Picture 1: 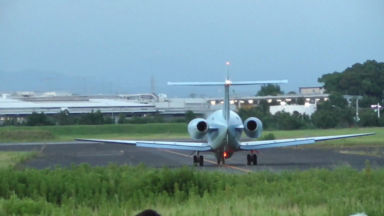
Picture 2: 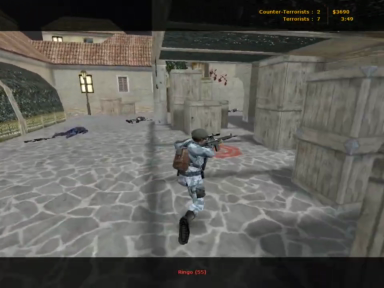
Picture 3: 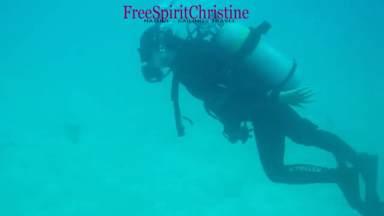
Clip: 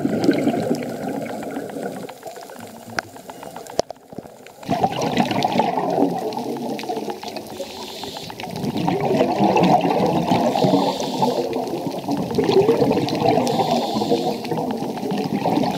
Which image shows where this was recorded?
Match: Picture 3